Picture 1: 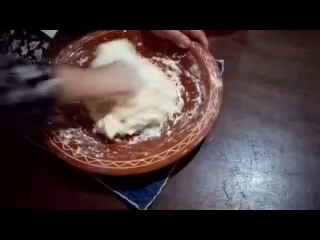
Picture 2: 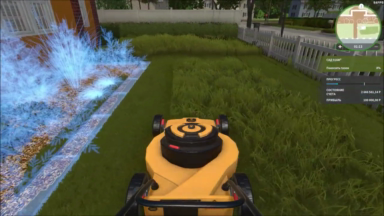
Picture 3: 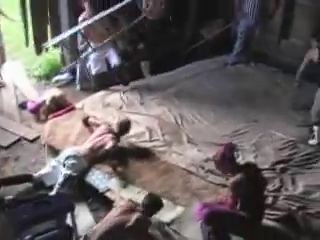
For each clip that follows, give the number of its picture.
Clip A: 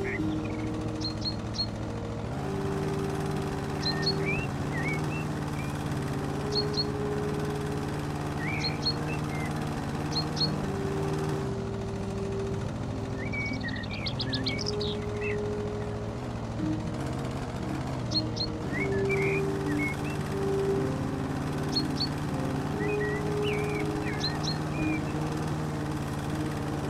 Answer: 2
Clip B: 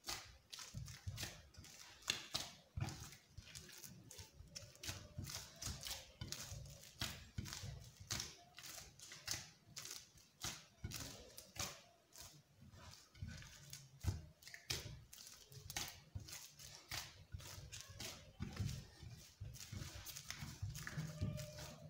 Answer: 1